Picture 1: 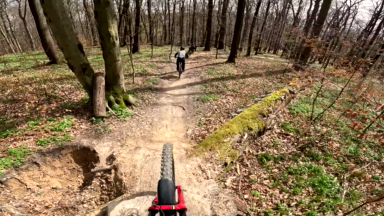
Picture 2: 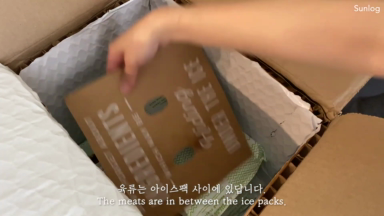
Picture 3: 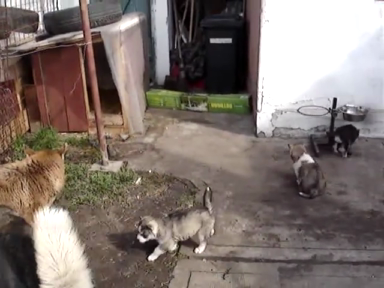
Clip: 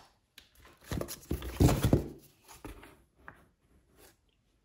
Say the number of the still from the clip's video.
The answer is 2